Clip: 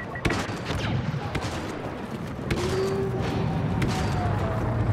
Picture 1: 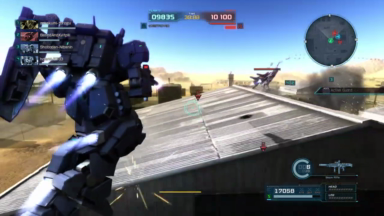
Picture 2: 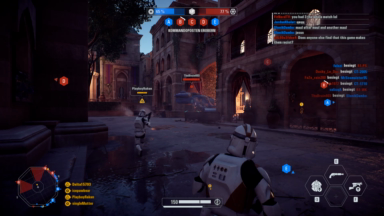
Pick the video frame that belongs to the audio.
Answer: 2